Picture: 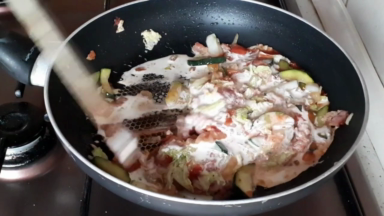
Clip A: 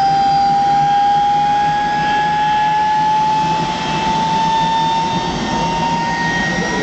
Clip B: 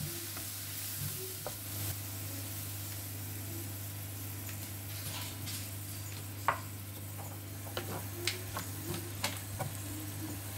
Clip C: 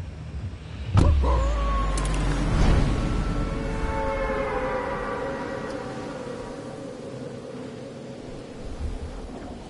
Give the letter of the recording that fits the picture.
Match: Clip B